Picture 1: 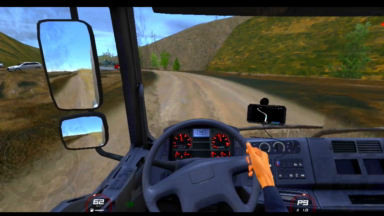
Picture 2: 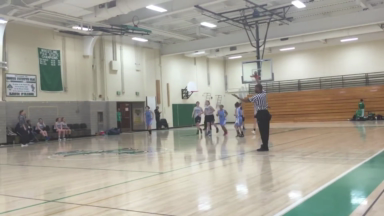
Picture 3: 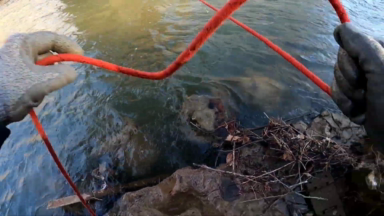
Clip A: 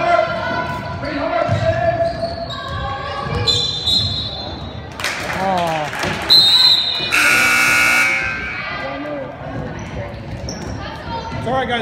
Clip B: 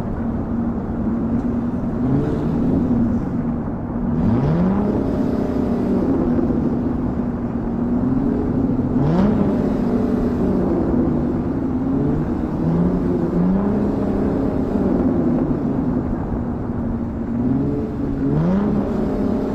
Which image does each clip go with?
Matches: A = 2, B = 1